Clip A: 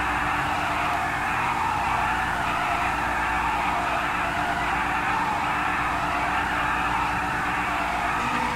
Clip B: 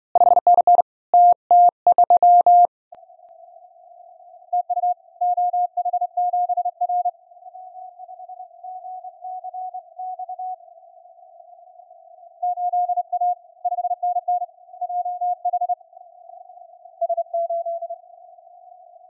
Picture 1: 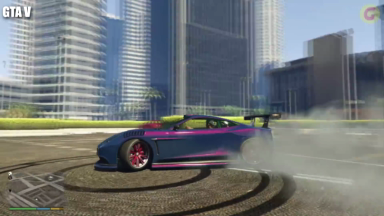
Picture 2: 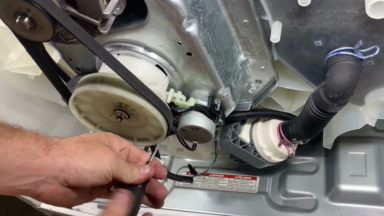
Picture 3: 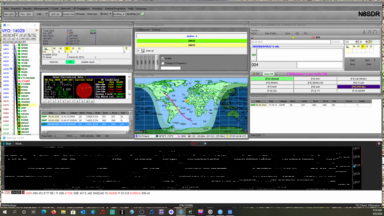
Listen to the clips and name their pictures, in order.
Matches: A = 1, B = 3